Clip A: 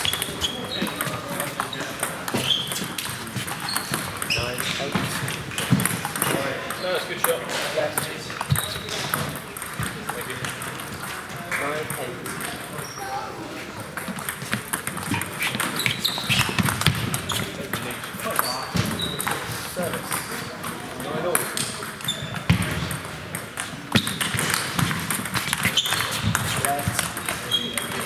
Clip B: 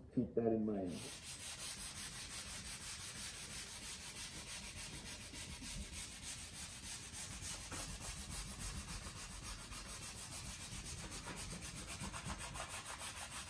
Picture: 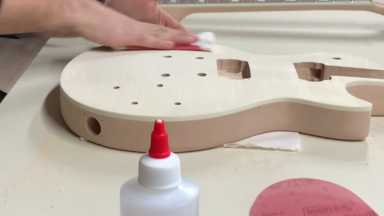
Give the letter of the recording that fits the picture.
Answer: B